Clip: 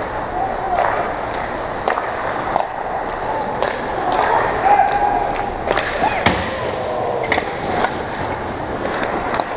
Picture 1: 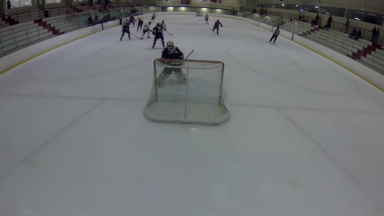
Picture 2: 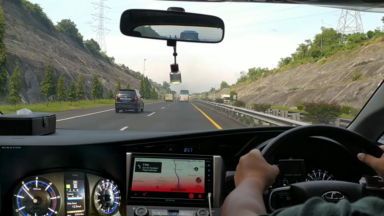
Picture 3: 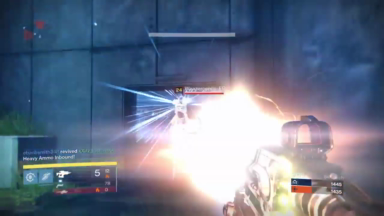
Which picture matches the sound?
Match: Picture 1